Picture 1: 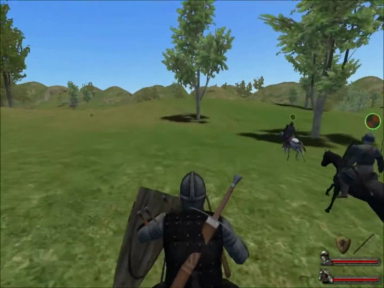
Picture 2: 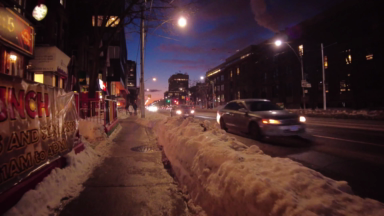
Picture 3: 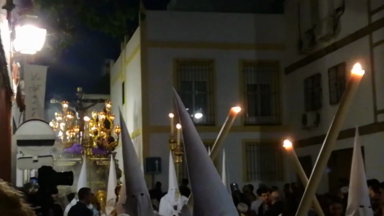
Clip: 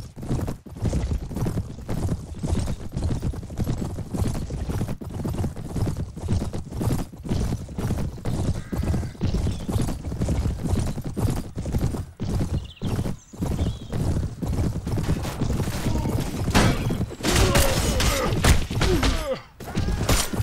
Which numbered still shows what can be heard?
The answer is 1